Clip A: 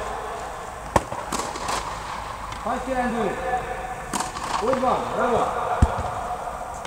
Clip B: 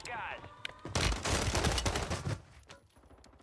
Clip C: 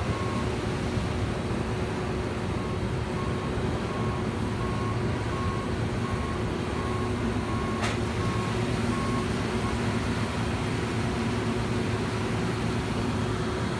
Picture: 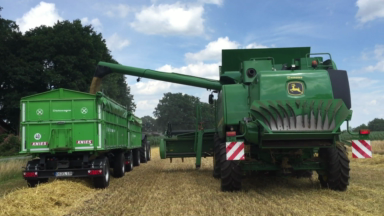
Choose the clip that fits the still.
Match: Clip C